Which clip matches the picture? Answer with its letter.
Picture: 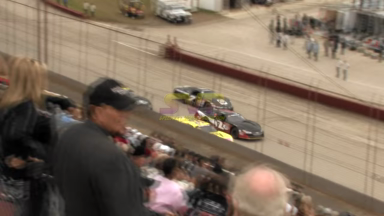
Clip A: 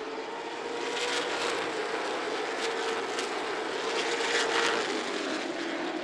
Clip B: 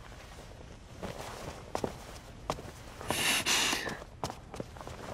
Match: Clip A